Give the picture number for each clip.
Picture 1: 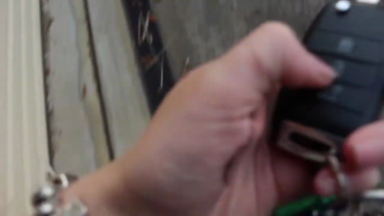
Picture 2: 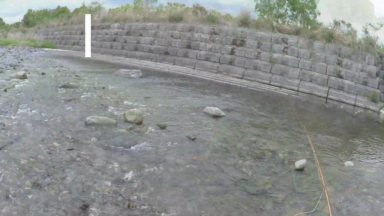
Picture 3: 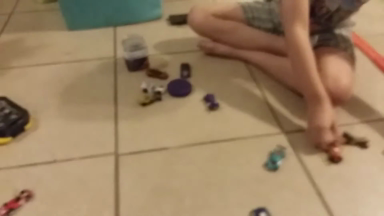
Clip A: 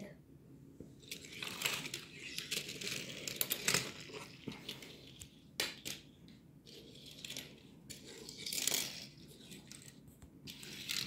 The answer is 3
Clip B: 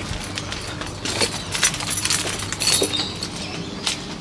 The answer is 1